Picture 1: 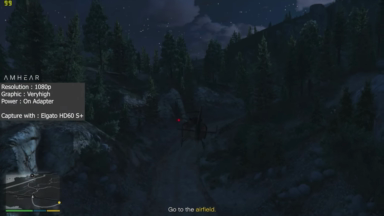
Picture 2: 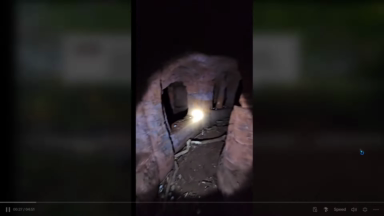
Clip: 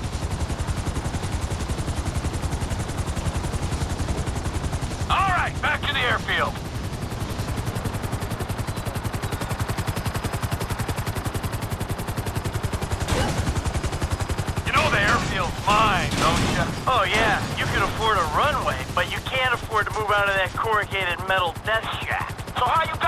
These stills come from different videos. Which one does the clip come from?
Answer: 1